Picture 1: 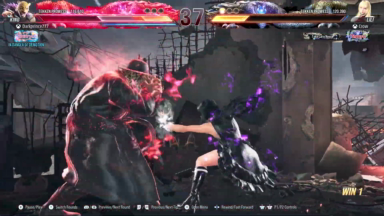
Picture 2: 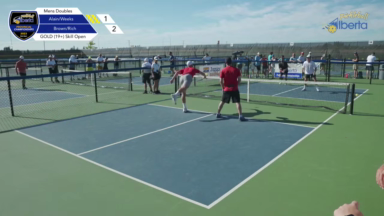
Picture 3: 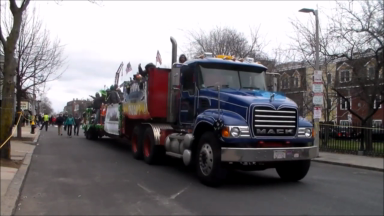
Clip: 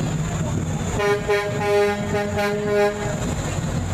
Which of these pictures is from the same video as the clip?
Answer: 3